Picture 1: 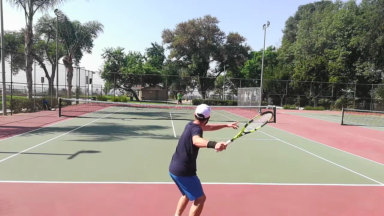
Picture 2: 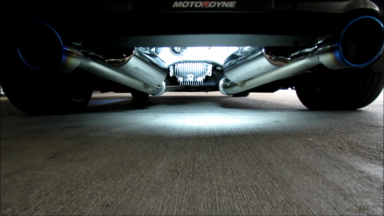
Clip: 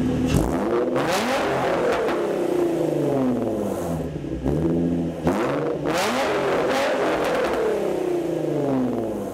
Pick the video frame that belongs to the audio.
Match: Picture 2